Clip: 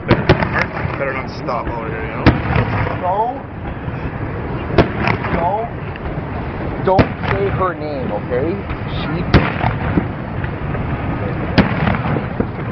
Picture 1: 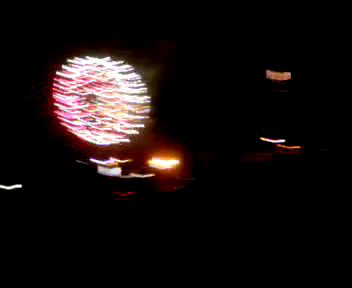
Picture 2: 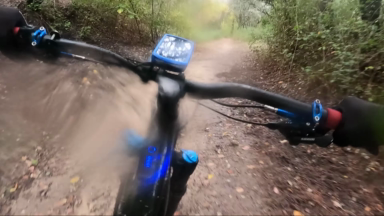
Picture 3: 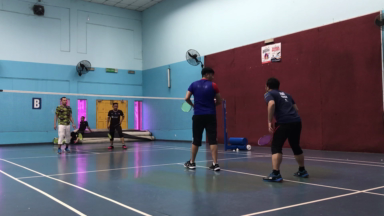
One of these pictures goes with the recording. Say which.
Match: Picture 1